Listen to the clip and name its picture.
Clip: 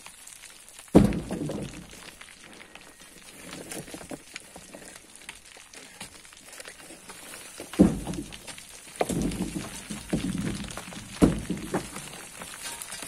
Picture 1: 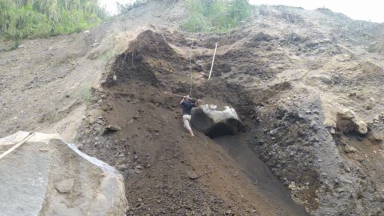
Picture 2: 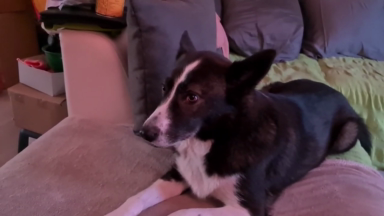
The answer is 1